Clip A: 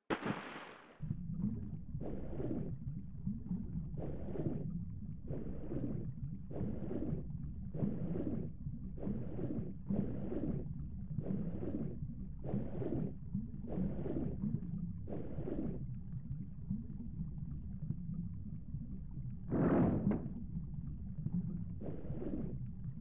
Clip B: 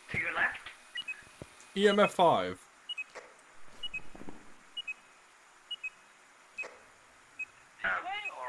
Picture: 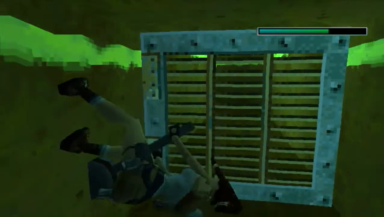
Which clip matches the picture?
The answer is A